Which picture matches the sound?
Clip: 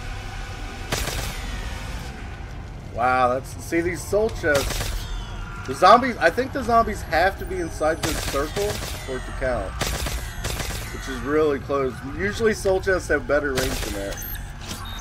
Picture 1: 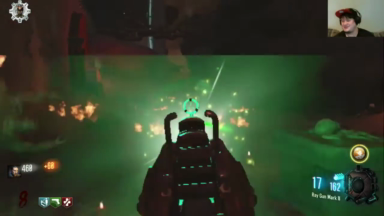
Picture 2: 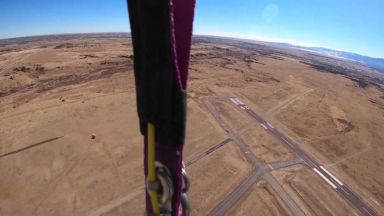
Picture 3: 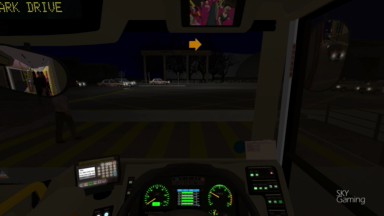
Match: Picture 1